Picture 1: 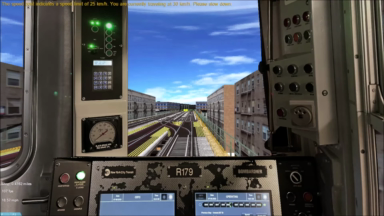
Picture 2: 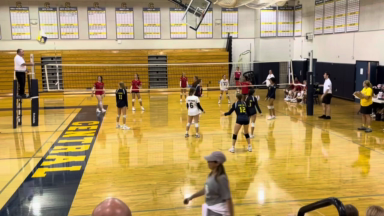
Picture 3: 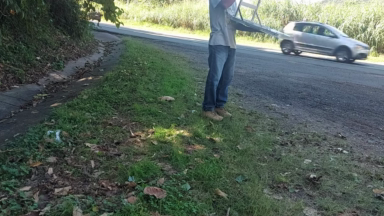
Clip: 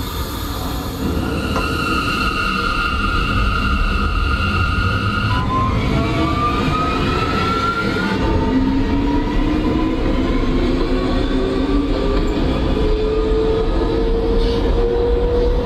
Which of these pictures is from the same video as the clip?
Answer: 1